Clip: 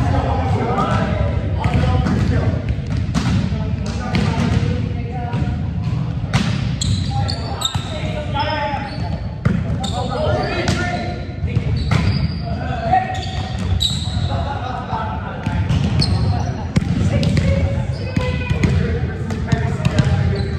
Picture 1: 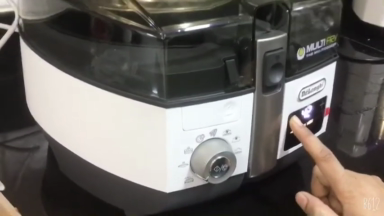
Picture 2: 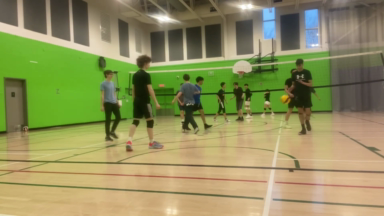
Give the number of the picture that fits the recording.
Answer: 2